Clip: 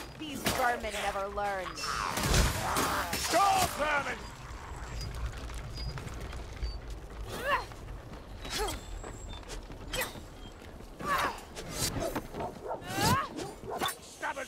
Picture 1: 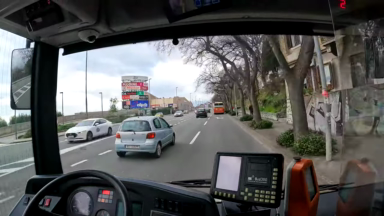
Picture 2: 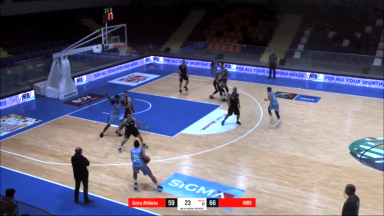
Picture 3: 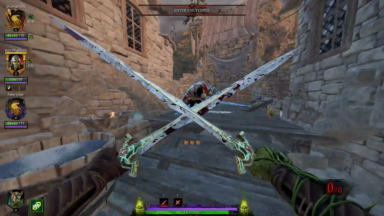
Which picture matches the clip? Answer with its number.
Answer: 3